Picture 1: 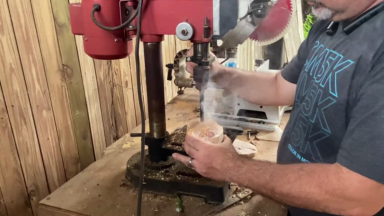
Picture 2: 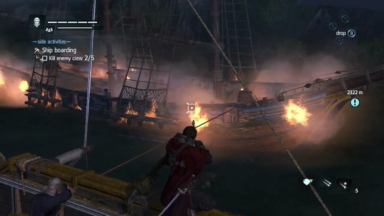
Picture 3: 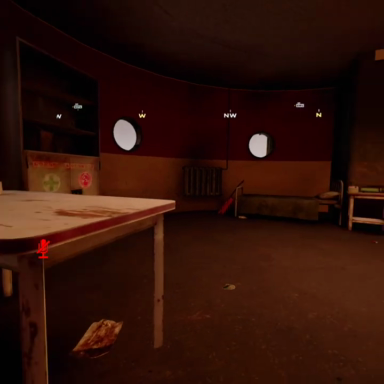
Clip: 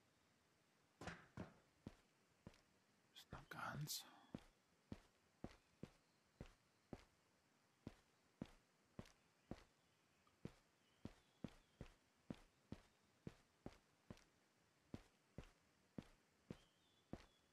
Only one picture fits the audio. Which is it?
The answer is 3